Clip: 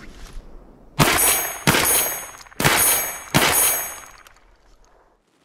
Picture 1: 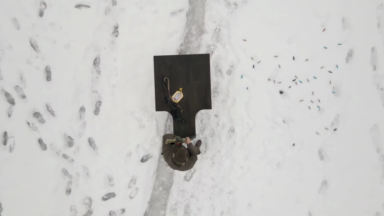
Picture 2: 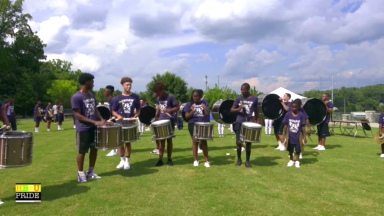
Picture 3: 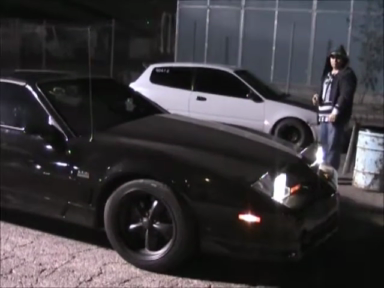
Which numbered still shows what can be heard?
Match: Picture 1